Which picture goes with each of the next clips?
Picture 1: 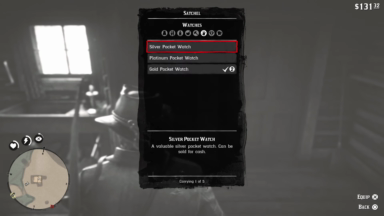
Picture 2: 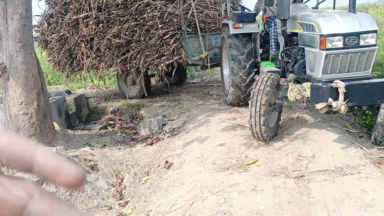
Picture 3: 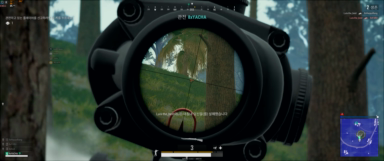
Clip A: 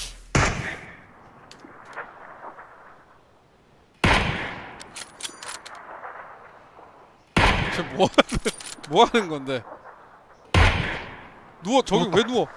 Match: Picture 3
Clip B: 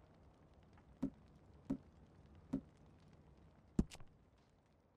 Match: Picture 1